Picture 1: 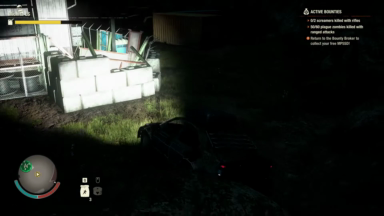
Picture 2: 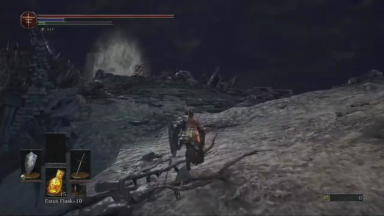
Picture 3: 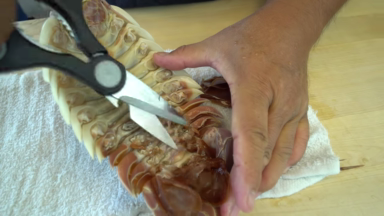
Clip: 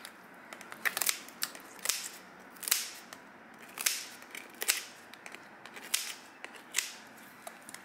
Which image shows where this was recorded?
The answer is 3